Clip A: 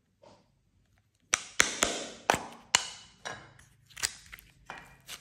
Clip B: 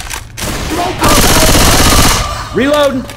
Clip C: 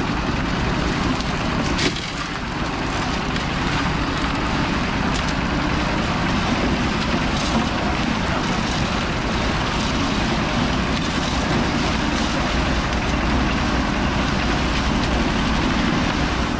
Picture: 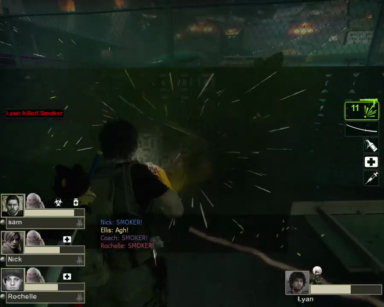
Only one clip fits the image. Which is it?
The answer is B